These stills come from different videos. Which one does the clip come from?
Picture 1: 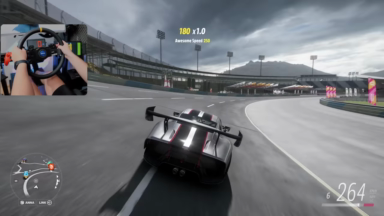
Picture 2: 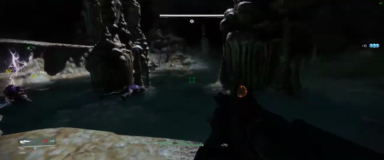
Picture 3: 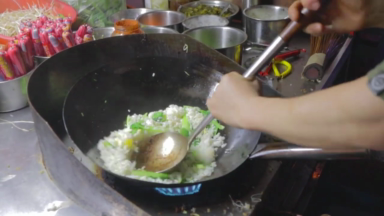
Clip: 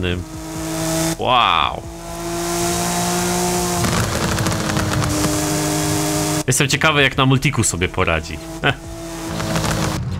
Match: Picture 1